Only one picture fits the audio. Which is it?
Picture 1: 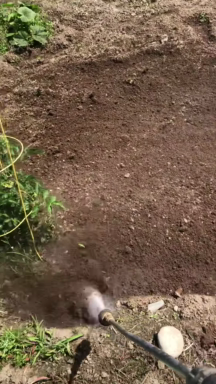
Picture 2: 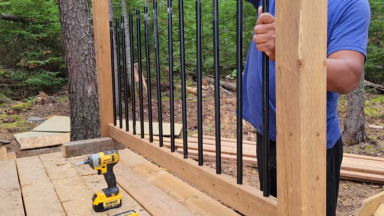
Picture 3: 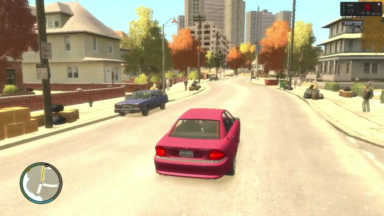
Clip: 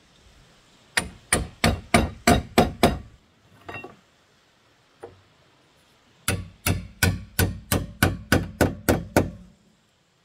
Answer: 2